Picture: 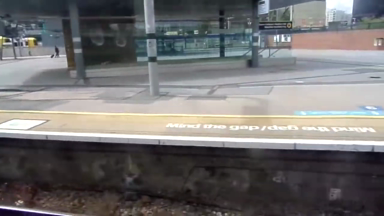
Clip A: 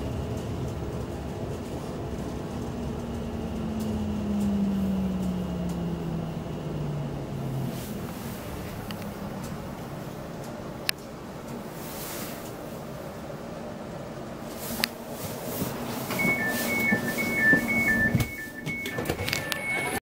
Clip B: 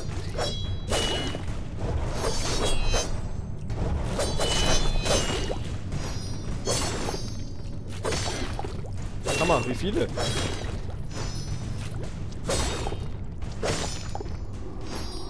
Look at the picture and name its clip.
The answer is A